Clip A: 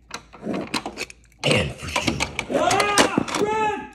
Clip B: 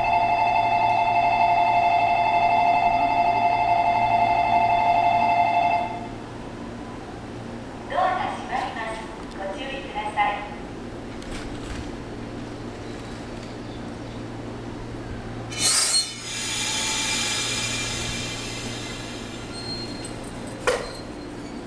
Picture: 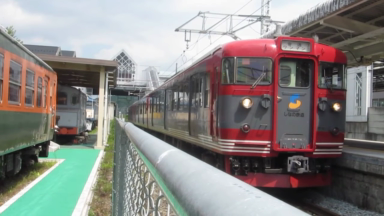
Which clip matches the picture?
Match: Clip B